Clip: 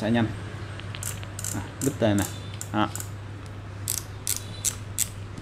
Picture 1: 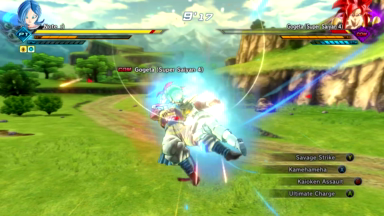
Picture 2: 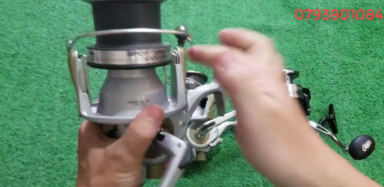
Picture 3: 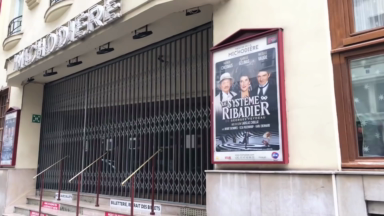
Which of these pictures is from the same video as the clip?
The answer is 2